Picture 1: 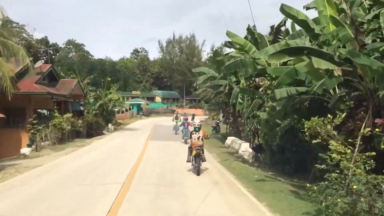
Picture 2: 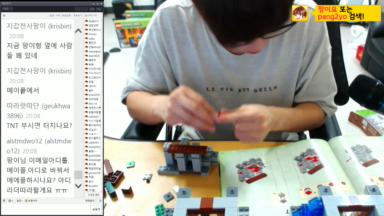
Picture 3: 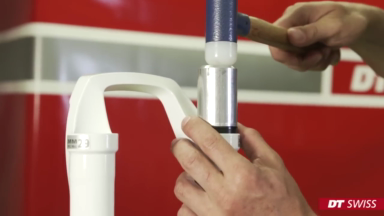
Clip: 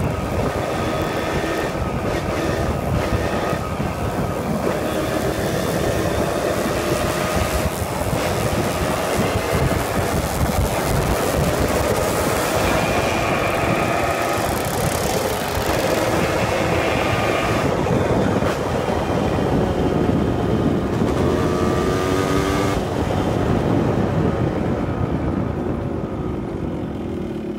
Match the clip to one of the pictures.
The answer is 1